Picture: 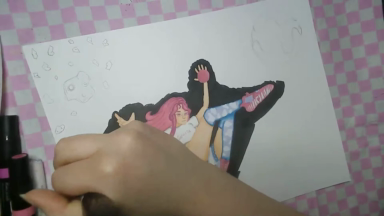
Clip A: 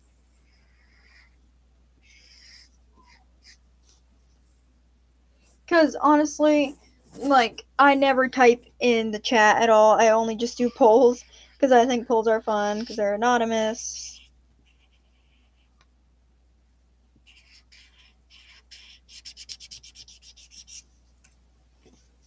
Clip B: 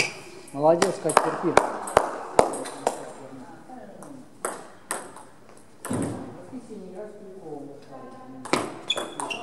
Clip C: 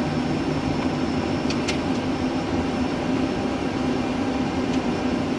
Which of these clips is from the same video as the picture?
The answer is A